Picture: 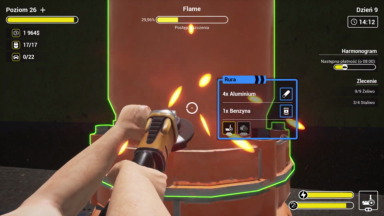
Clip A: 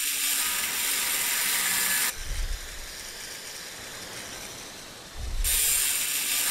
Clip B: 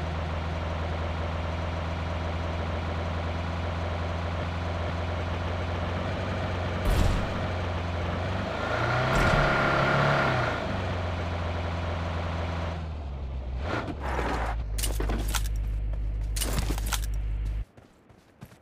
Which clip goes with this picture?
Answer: A